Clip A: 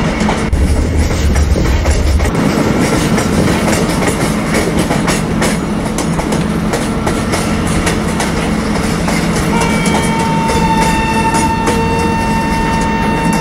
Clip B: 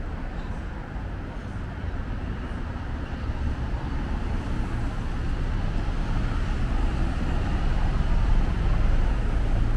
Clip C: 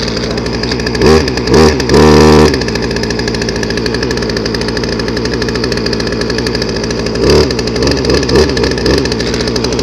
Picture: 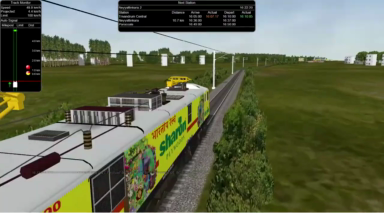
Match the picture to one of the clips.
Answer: A